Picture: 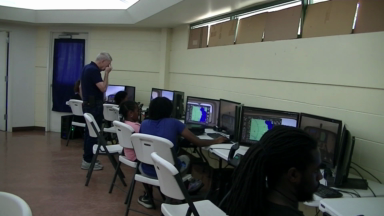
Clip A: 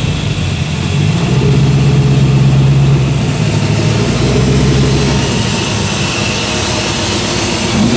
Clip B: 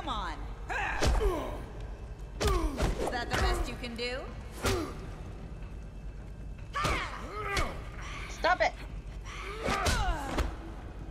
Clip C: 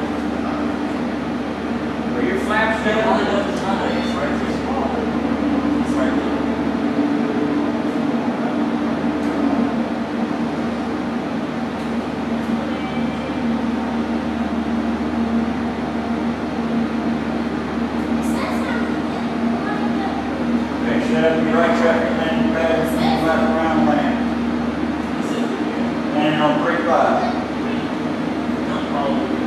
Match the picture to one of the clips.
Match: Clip C